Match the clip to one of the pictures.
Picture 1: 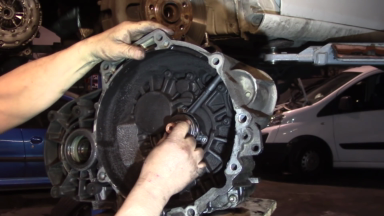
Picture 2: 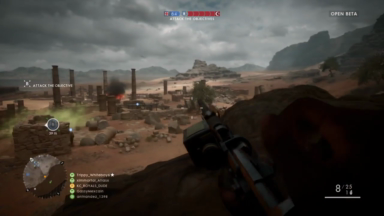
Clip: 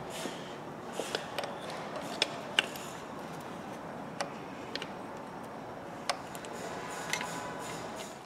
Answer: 1